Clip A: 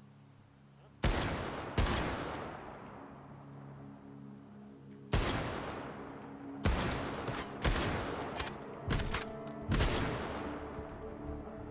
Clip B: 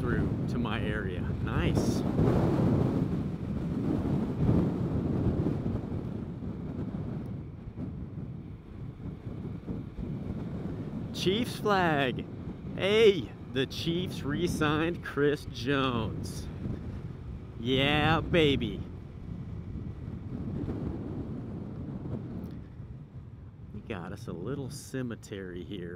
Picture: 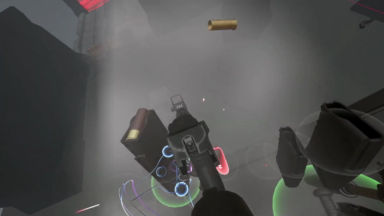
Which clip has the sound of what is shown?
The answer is A